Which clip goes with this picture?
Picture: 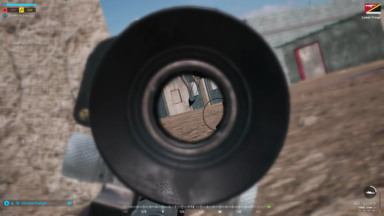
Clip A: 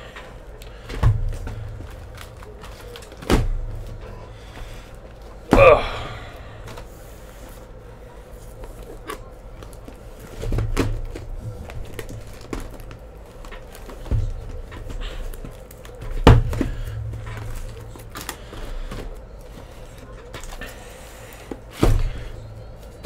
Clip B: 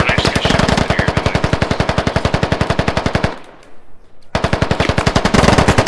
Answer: B